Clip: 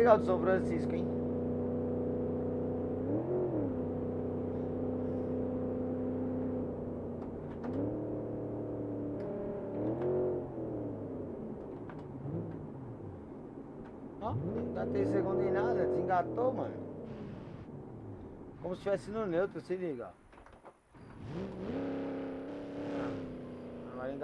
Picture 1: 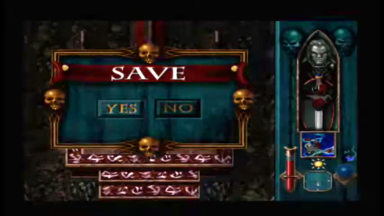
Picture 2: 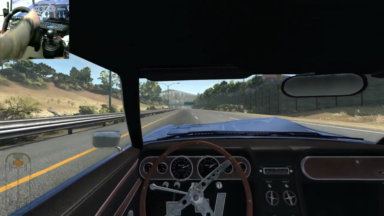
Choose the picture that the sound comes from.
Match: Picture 2